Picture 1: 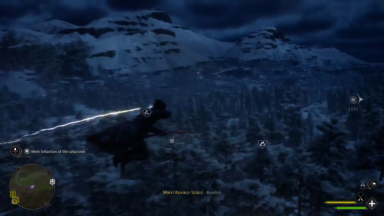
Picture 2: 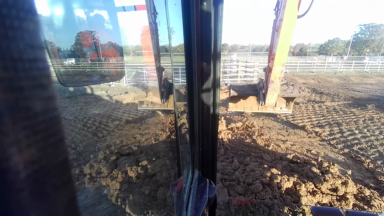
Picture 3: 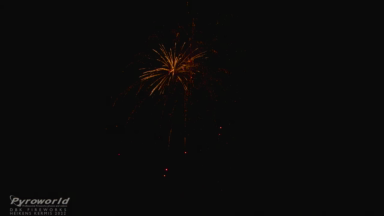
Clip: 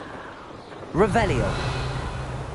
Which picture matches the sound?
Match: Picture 1